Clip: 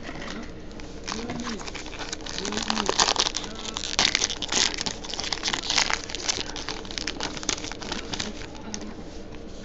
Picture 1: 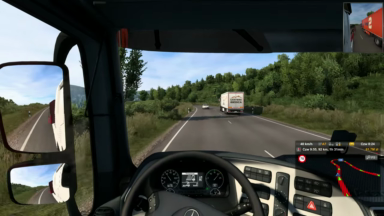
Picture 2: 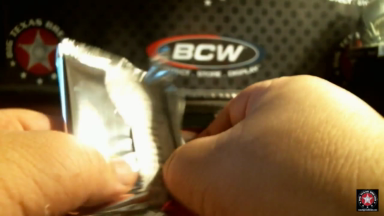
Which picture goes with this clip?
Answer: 2